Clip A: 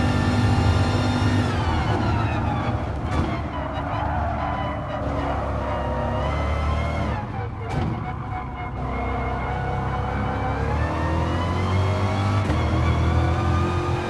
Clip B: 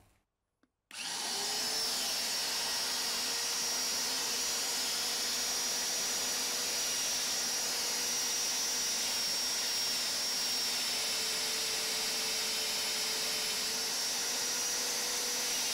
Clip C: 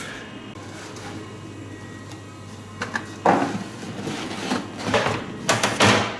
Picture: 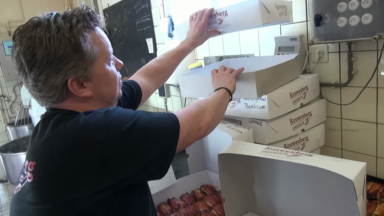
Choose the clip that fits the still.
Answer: C